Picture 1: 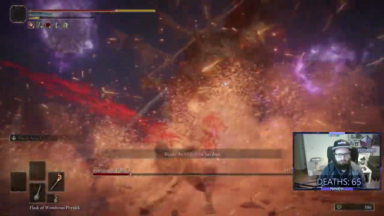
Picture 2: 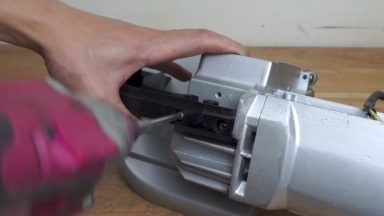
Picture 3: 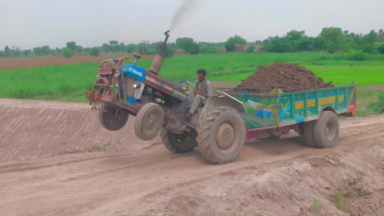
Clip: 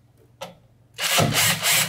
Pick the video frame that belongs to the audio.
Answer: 2